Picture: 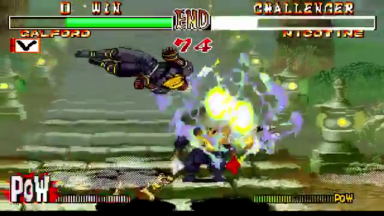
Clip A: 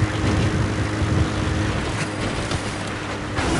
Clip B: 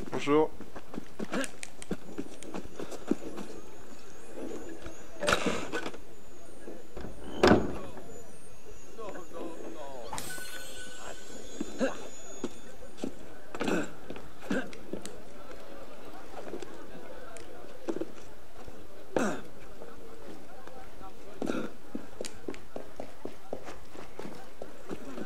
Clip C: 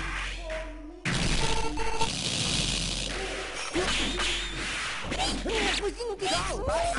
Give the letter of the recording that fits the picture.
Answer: C